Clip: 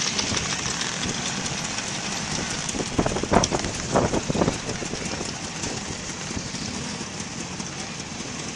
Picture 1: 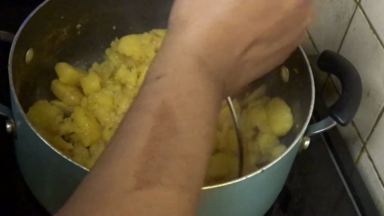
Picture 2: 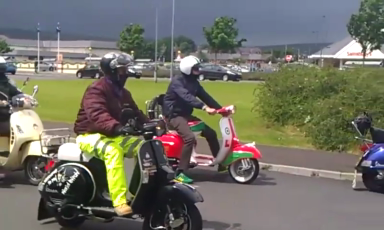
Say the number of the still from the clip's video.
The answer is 2